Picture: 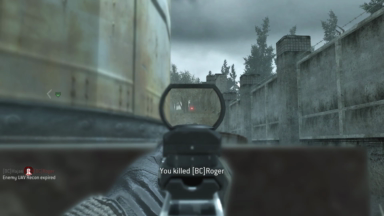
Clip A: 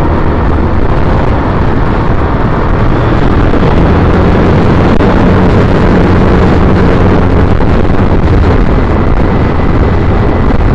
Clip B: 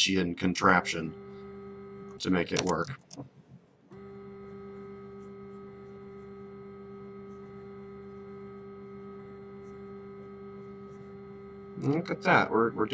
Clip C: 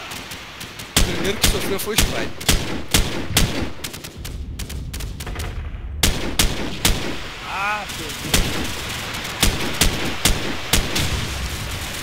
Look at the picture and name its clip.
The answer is C